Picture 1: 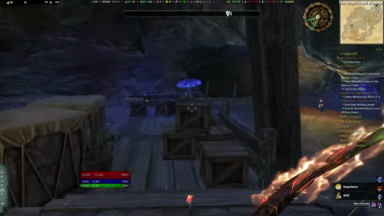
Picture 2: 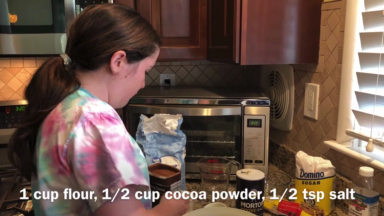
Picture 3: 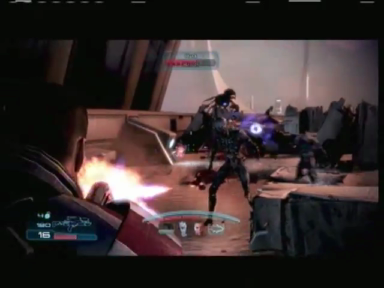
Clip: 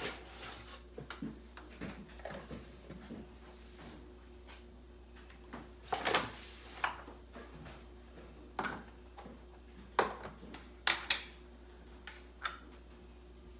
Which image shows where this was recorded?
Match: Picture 2